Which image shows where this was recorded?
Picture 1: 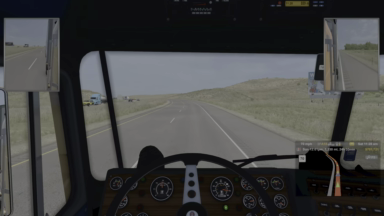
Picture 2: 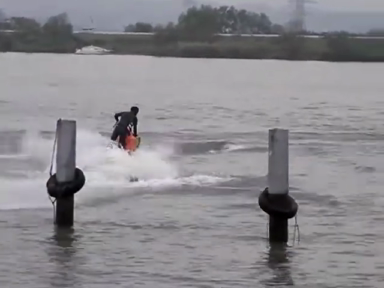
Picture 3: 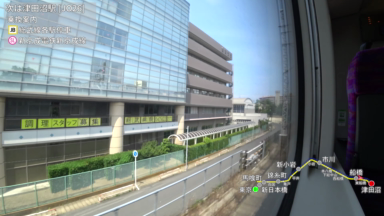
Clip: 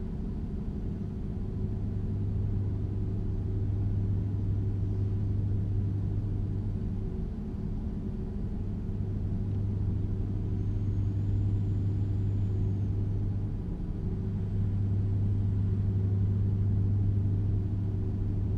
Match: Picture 1